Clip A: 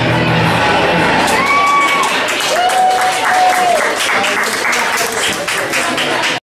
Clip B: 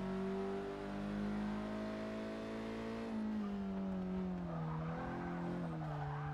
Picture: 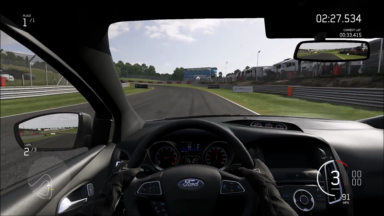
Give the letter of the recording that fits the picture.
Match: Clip B